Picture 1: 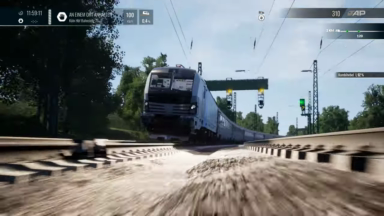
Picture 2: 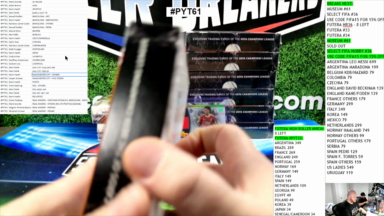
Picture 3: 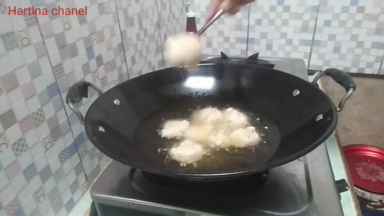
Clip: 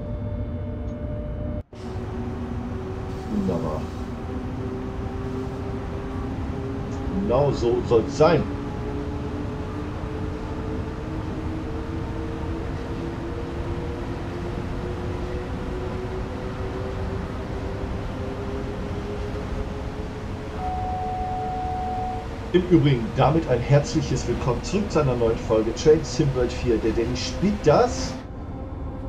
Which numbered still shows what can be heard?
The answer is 1